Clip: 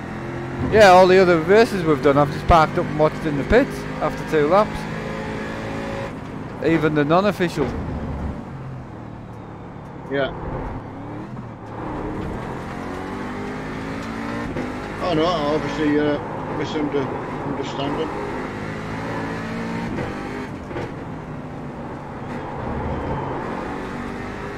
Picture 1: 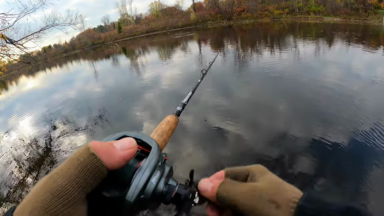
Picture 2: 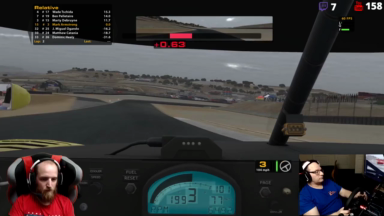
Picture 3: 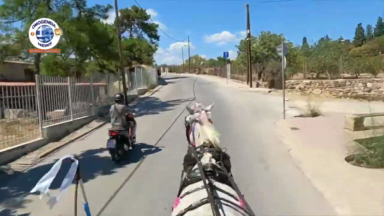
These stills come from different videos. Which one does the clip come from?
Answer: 2